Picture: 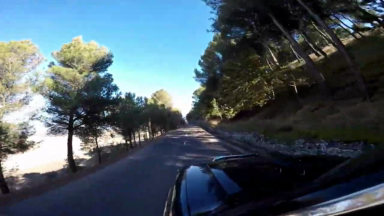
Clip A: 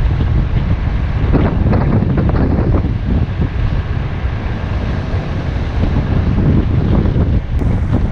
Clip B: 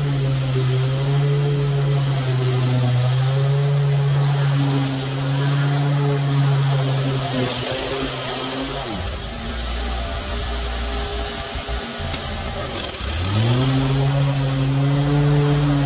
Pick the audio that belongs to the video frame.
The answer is A